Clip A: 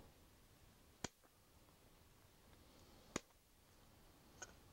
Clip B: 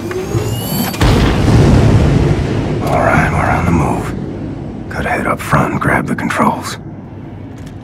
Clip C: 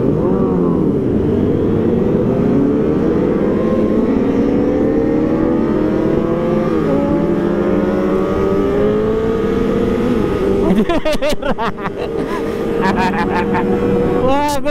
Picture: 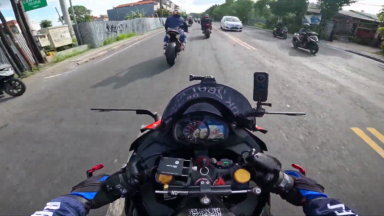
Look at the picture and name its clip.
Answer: C